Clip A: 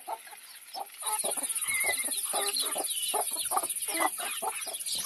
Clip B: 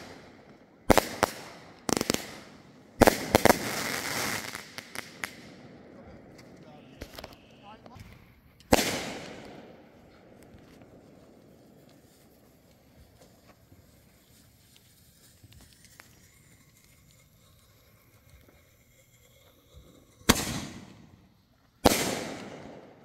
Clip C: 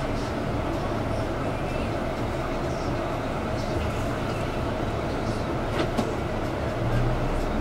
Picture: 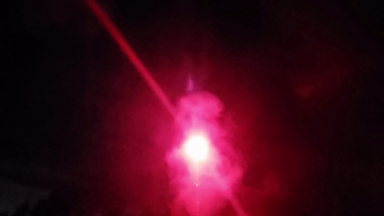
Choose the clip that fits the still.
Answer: B